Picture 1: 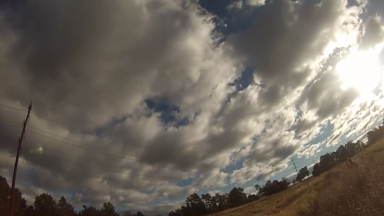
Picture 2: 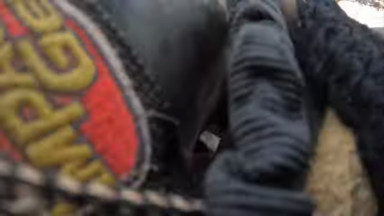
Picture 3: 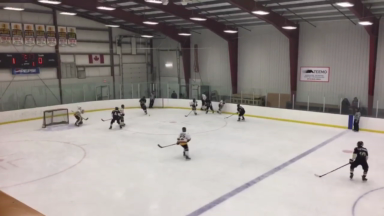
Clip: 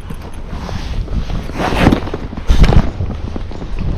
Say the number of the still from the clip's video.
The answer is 2